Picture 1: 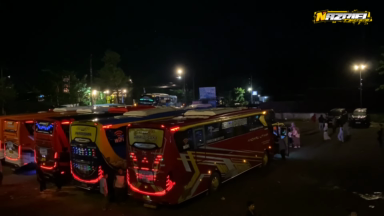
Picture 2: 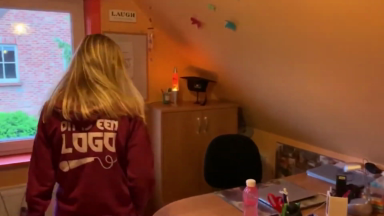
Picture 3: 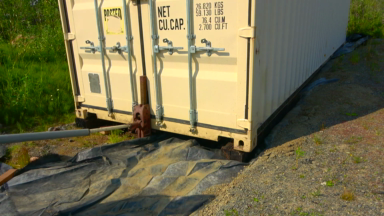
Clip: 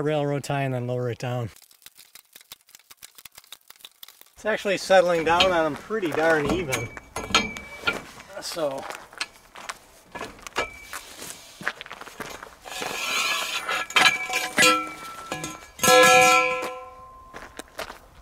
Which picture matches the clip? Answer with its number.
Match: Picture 3